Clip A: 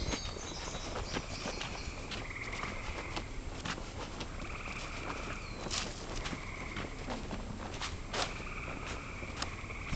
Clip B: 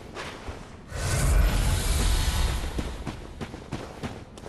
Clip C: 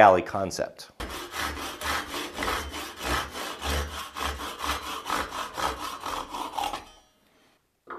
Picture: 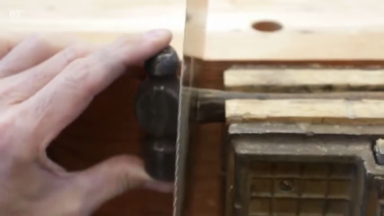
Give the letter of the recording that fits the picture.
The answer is C